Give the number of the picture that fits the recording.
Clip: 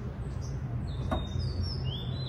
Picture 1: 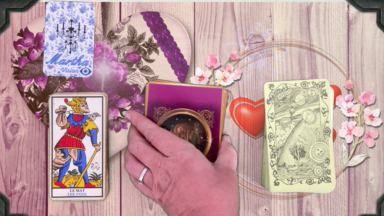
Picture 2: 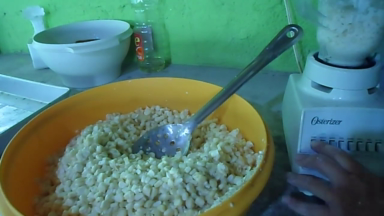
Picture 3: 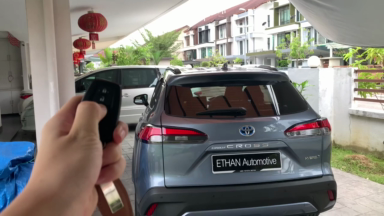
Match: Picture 3